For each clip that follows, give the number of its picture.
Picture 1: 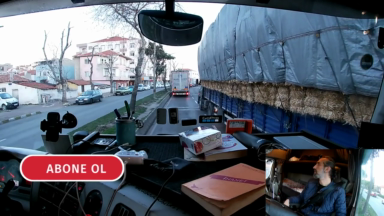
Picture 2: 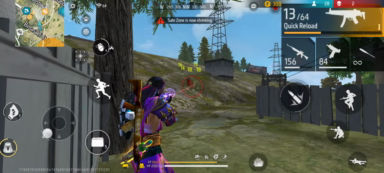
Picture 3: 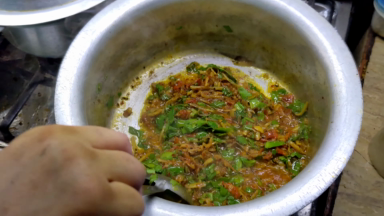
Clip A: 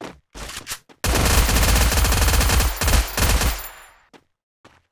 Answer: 2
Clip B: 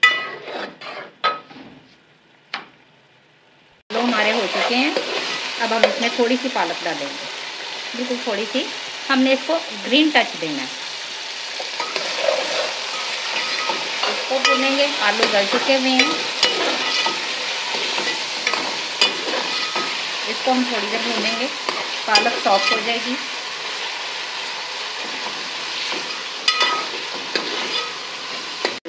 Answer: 3